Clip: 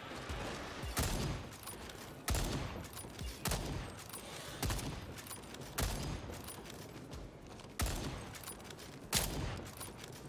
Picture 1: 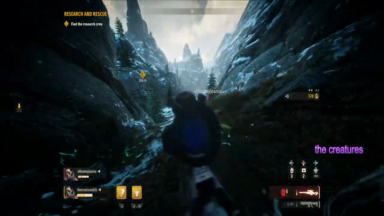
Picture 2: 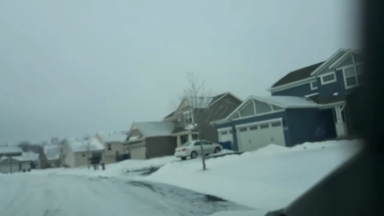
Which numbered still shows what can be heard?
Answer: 1